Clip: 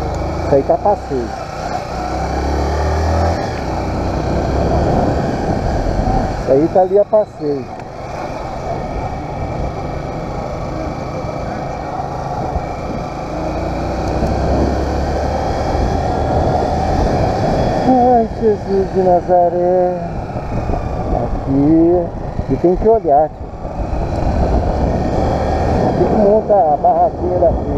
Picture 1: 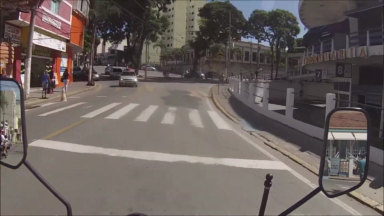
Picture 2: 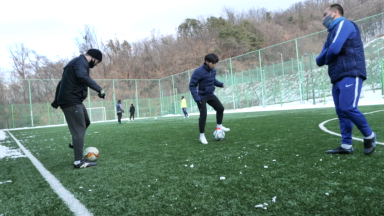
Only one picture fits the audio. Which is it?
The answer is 1